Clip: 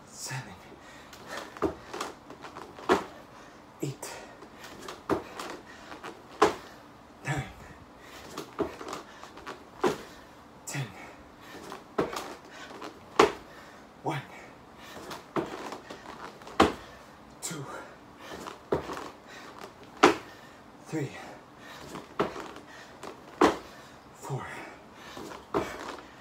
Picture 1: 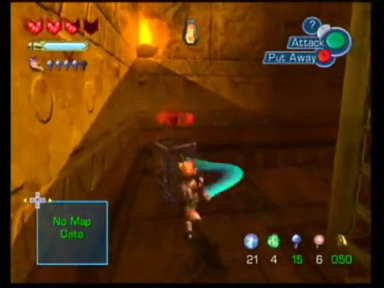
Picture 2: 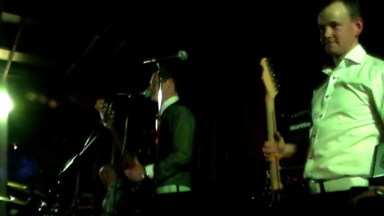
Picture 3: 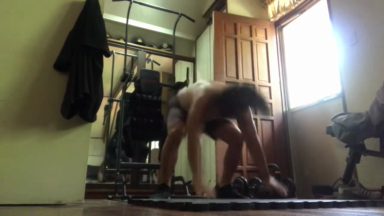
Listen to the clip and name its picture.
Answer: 3